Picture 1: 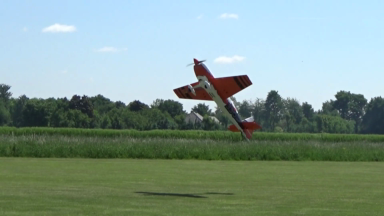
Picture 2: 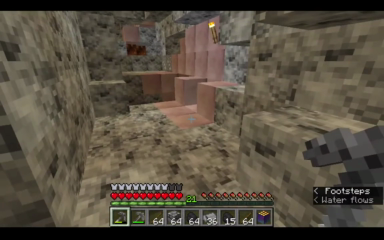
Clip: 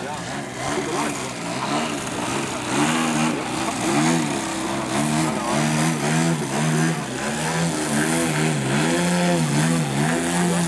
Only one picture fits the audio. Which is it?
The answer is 1